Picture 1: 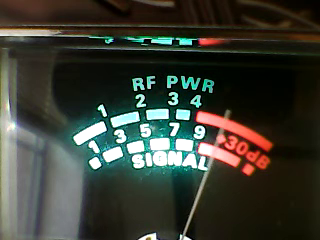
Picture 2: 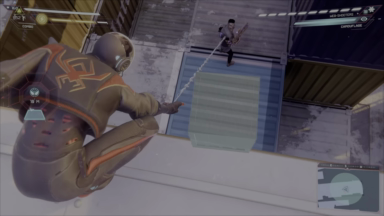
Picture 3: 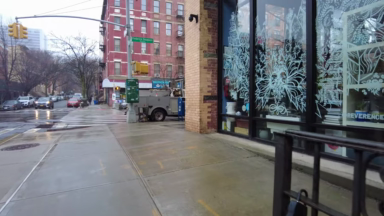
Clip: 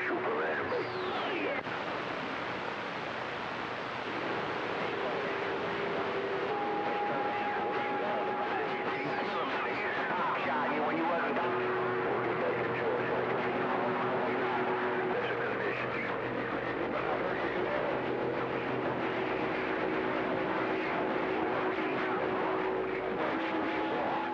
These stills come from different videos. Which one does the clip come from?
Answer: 1